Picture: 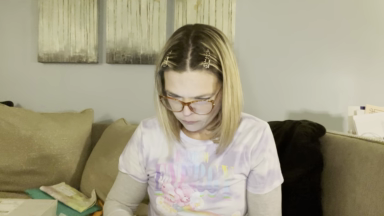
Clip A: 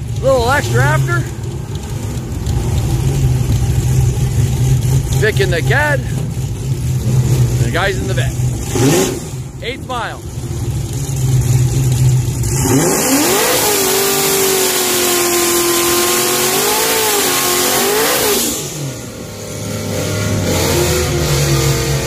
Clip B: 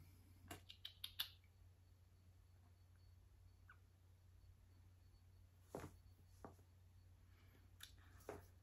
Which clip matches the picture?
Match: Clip B